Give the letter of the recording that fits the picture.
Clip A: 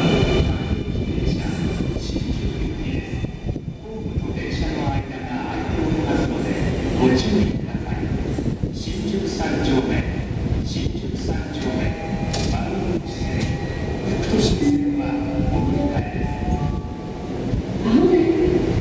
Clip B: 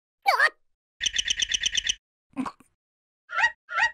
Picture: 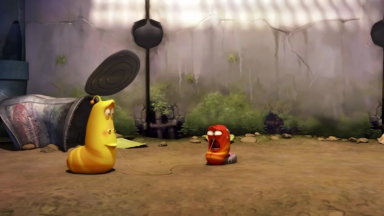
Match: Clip B